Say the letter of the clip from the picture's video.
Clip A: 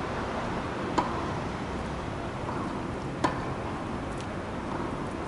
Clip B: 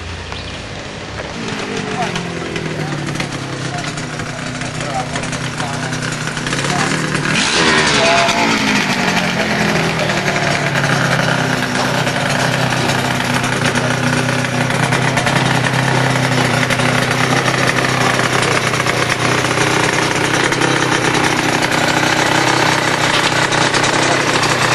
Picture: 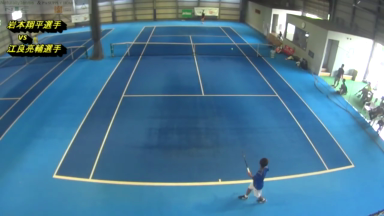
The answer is A